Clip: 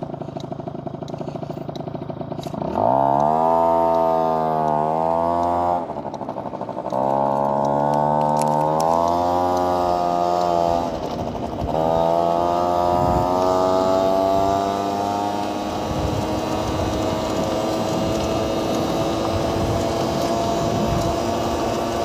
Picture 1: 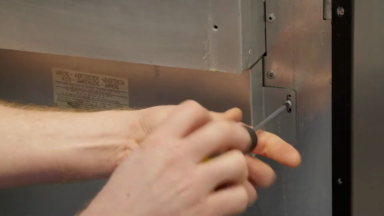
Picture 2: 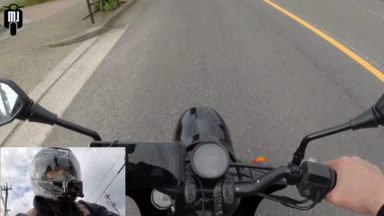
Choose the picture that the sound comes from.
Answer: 2